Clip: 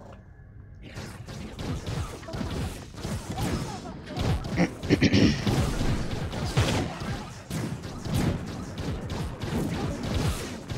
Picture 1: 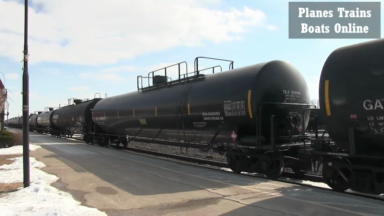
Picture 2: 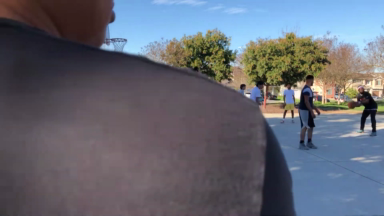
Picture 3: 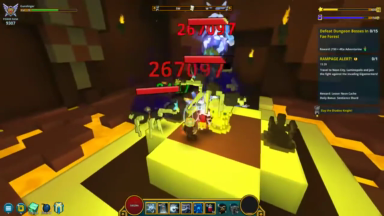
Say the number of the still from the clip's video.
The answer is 3